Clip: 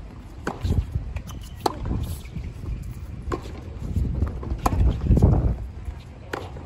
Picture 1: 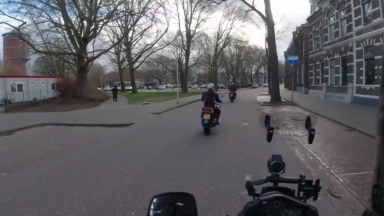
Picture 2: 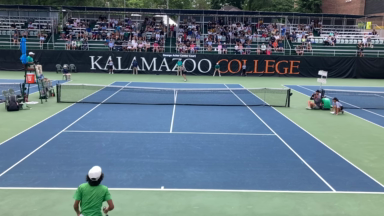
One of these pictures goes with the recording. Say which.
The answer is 2